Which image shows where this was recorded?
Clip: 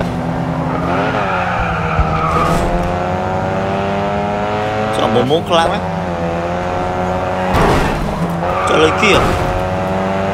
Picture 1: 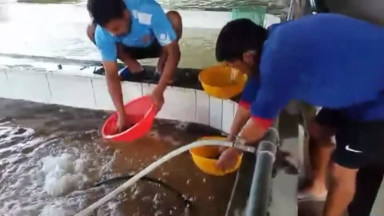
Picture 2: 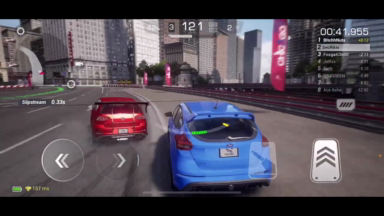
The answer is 2